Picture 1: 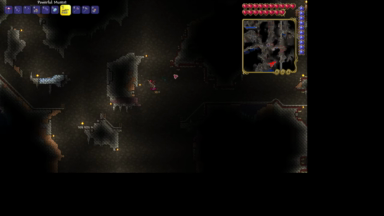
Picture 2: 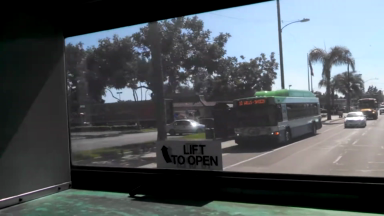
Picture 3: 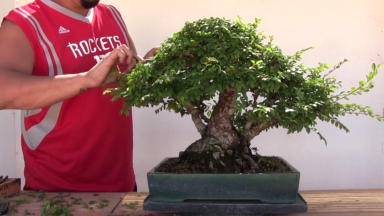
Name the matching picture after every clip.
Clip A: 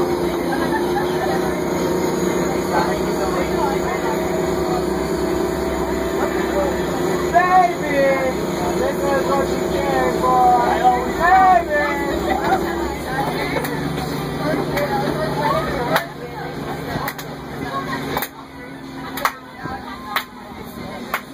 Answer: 2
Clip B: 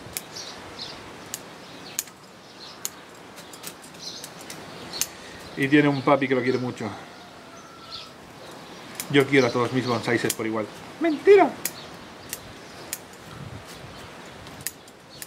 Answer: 3